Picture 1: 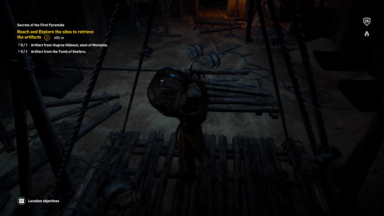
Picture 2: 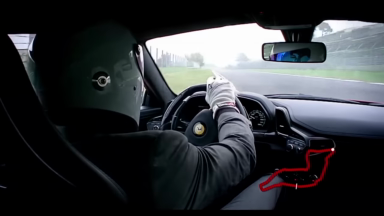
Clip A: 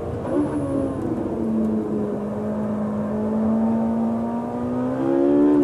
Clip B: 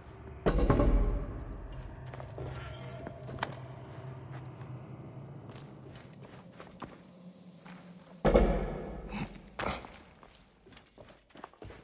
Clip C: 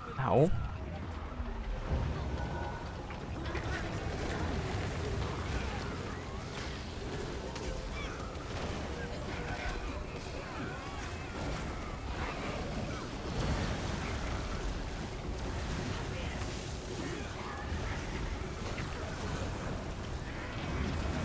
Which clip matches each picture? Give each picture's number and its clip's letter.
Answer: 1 B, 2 A